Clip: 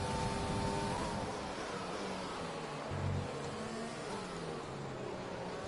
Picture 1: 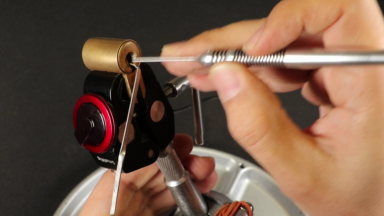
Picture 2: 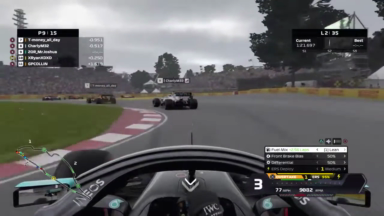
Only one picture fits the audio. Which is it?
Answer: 2